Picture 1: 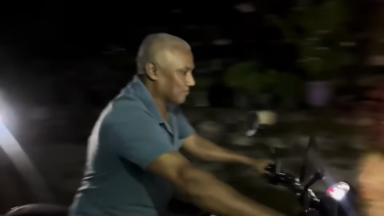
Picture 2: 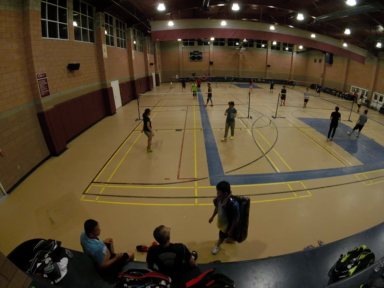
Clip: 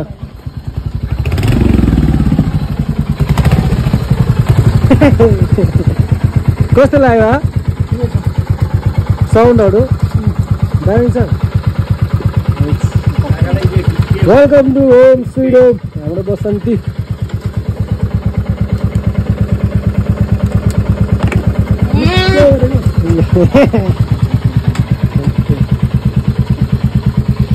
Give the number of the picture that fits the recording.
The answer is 1